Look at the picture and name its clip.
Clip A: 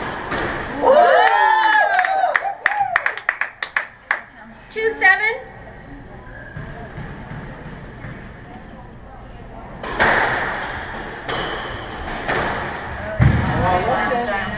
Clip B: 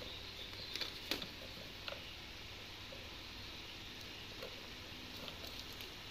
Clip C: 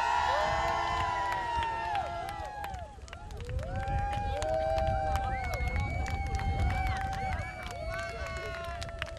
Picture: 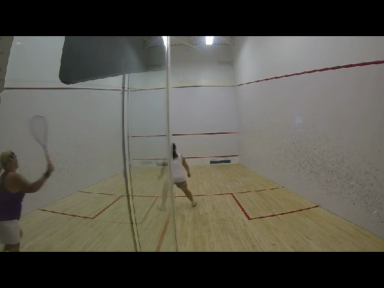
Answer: A